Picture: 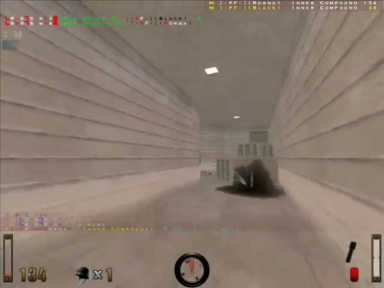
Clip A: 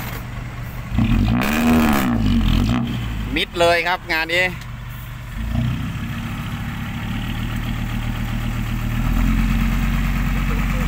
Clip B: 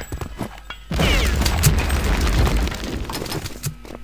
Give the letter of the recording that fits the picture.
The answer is B